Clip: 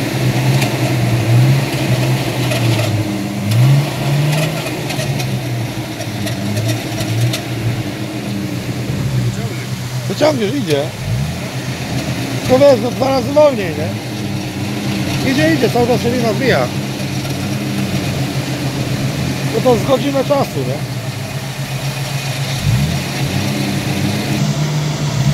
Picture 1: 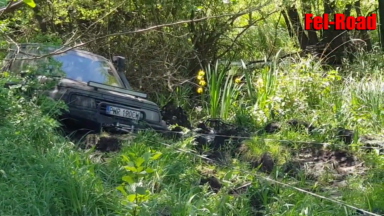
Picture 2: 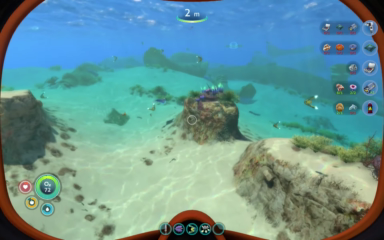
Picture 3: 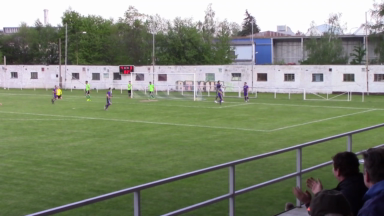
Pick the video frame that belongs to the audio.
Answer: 1